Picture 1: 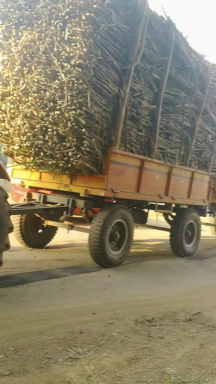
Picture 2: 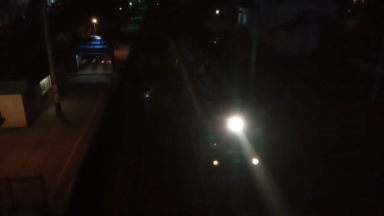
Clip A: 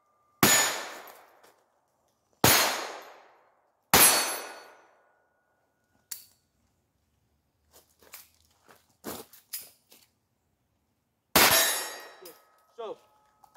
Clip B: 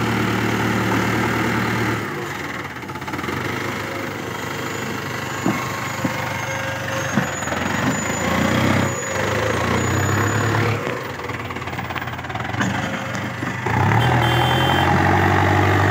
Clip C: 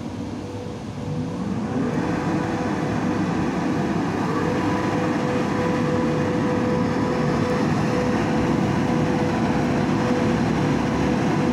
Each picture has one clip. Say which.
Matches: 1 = B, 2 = C